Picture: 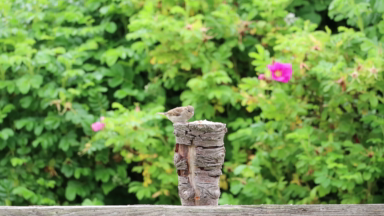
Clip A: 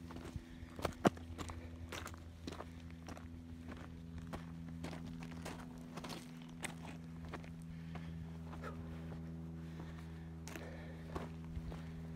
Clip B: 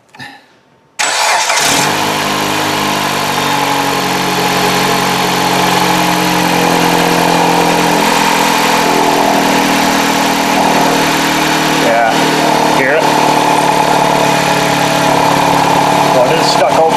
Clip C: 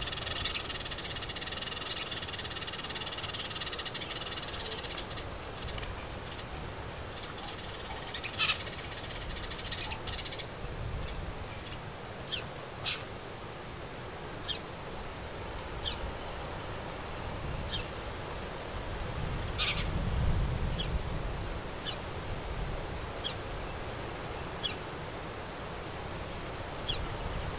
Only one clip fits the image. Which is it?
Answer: C